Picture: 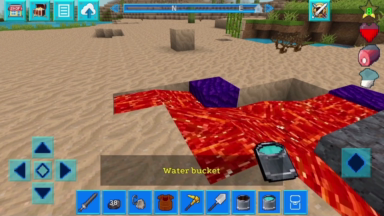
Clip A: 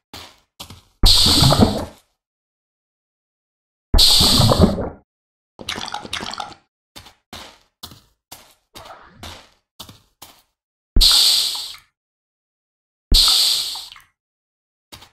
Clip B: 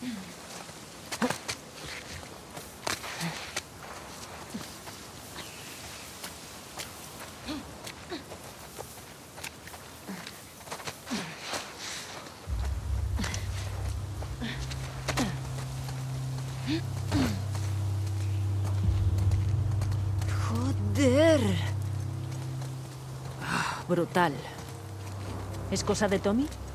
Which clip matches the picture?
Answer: A